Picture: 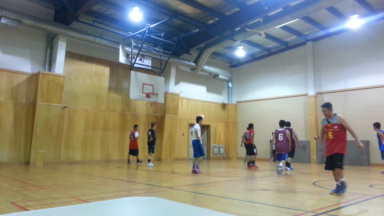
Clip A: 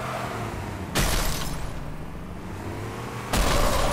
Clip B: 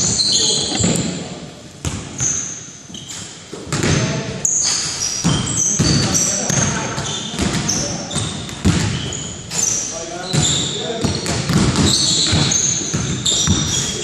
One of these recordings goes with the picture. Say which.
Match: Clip B